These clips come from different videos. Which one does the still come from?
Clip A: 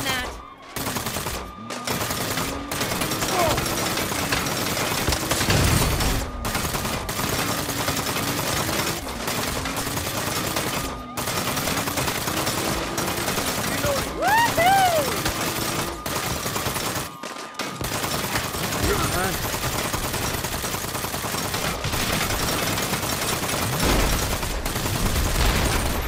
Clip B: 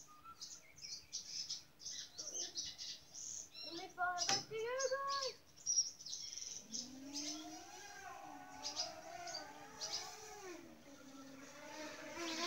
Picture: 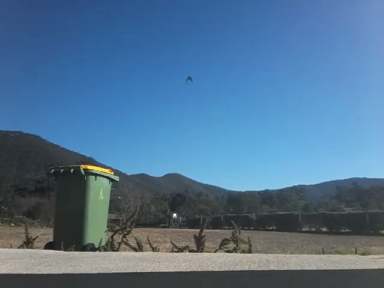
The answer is B